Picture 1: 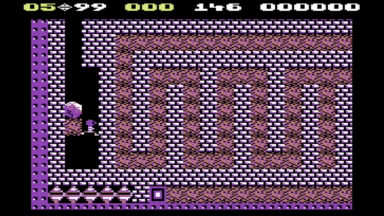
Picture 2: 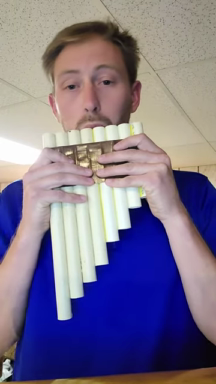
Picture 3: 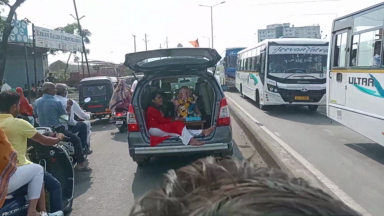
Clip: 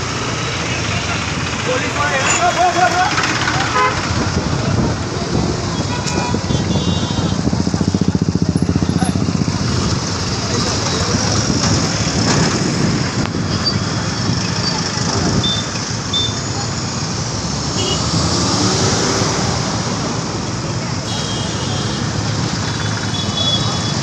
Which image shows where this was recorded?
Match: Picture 3